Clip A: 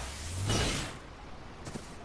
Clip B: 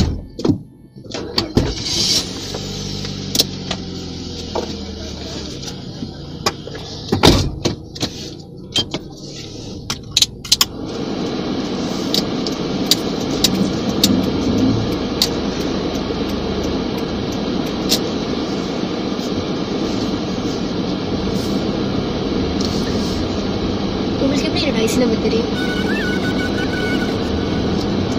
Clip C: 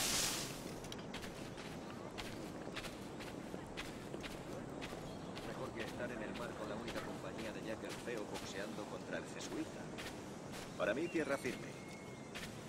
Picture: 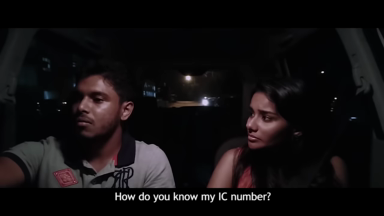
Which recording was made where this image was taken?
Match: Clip B